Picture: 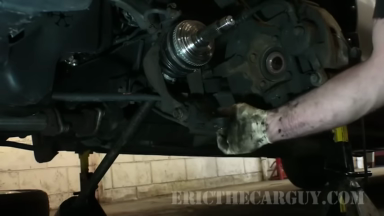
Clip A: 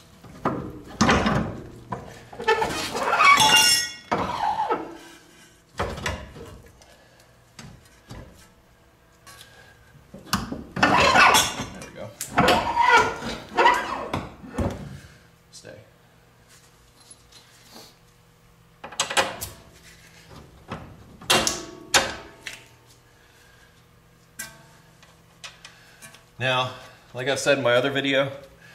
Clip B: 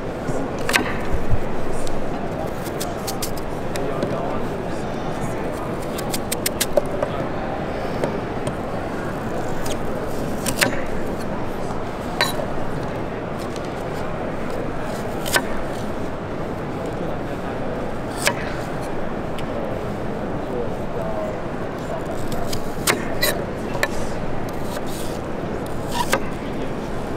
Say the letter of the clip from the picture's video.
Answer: A